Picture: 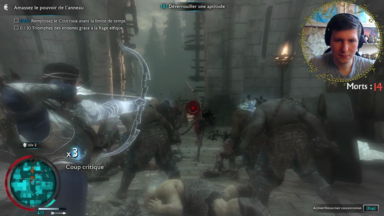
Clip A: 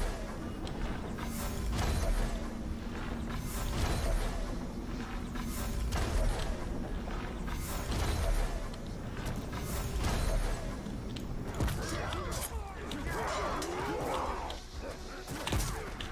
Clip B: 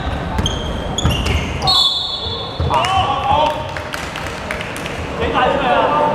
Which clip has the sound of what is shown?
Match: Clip A